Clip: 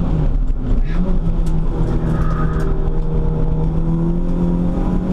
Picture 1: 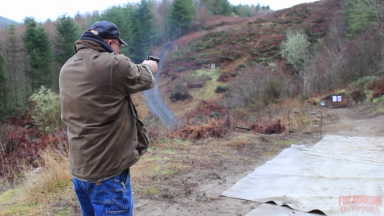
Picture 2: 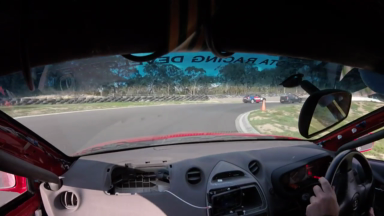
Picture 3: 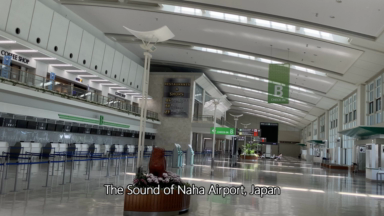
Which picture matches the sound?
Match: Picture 2